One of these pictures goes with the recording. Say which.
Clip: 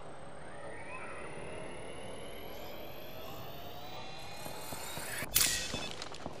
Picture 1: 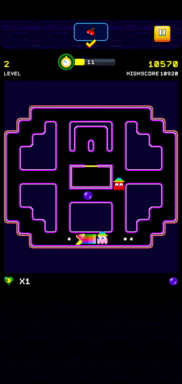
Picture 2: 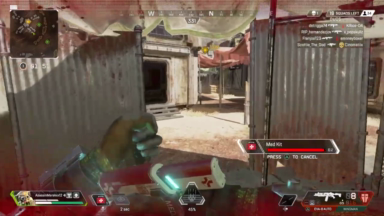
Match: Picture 2